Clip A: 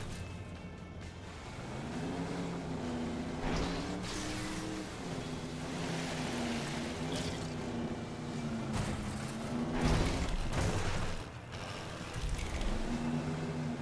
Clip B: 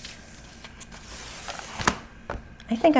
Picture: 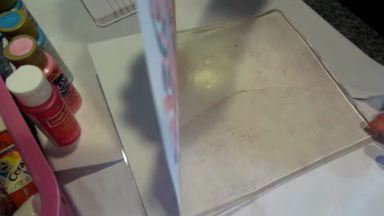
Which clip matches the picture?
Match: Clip B